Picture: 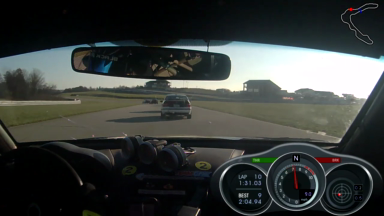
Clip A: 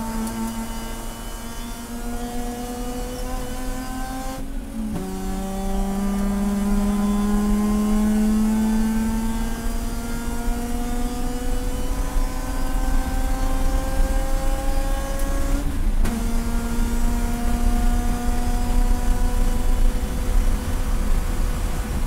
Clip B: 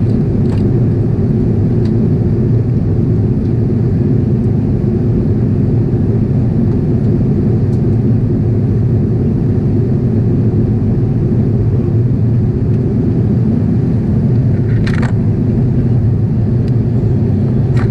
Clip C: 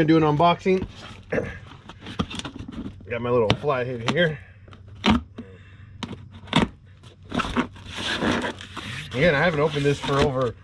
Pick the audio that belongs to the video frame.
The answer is A